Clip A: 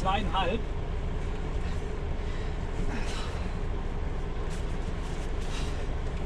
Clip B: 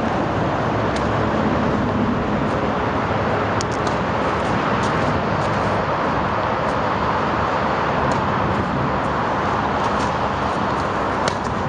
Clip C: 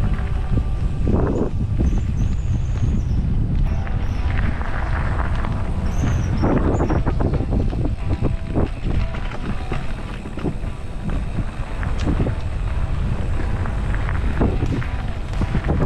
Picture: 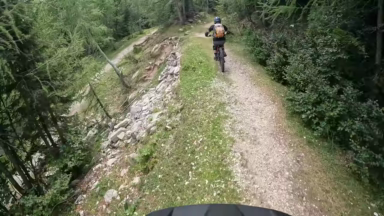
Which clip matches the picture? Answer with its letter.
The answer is C